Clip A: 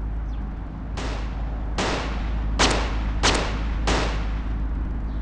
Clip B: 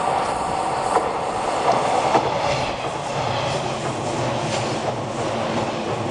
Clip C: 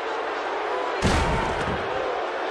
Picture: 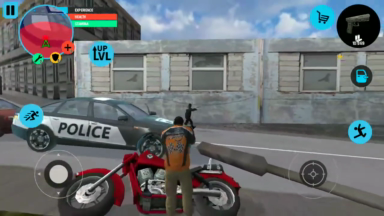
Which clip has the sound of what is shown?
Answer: A